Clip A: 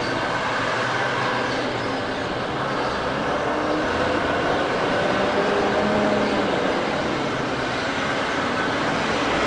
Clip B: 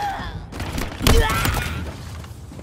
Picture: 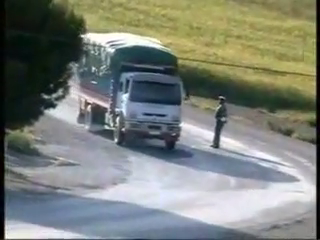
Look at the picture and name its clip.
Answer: A